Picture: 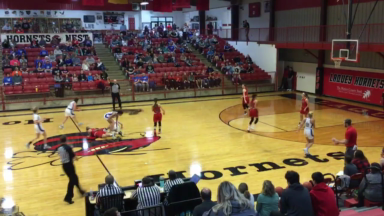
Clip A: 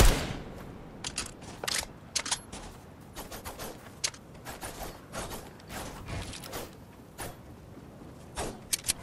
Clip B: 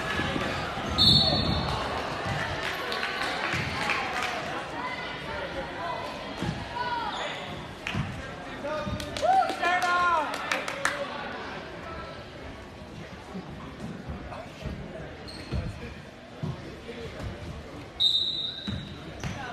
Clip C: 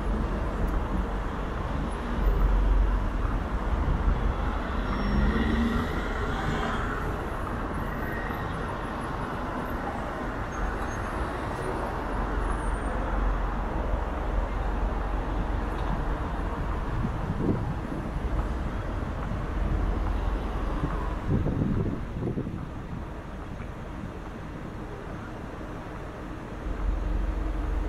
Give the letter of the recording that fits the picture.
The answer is B